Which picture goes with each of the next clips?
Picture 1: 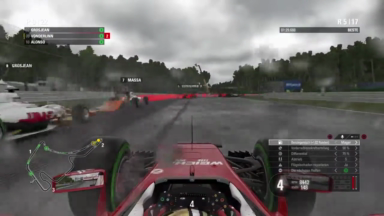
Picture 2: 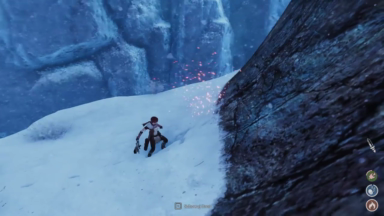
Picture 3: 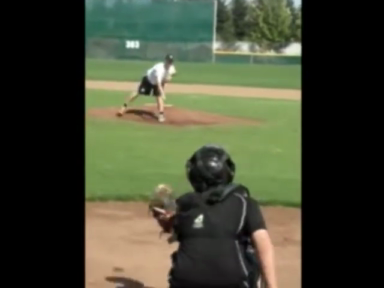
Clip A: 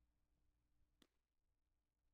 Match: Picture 3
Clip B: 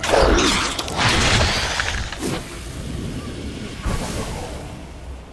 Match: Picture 2